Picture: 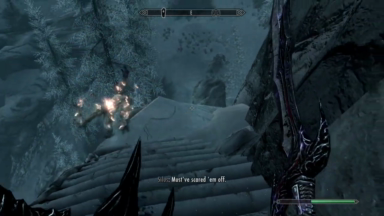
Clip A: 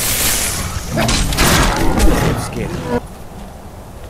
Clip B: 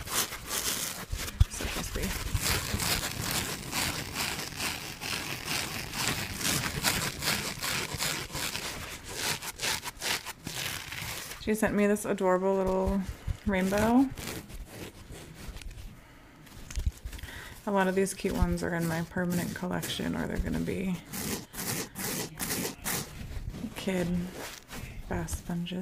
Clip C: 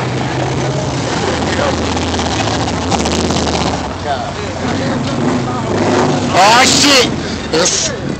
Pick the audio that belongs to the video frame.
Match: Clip A